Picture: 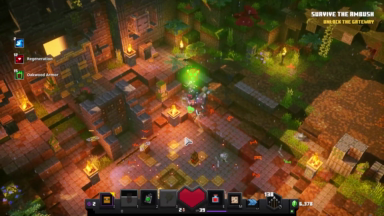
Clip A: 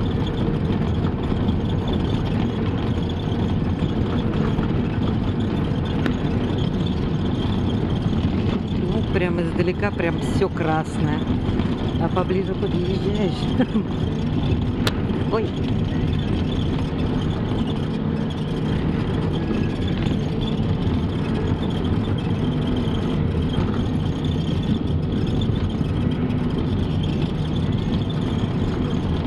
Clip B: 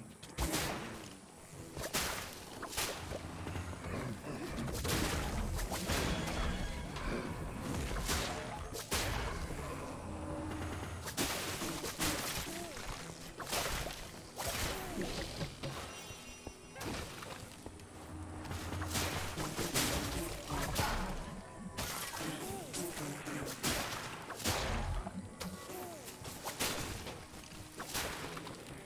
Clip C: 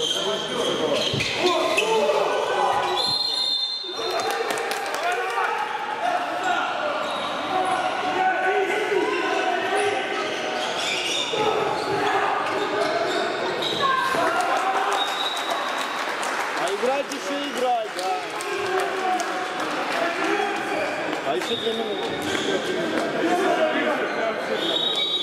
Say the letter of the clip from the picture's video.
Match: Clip B